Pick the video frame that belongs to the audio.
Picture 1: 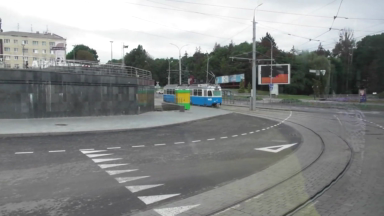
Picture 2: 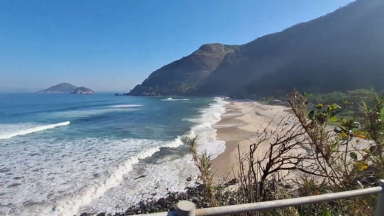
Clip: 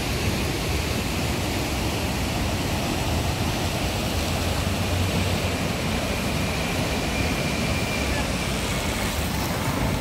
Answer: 2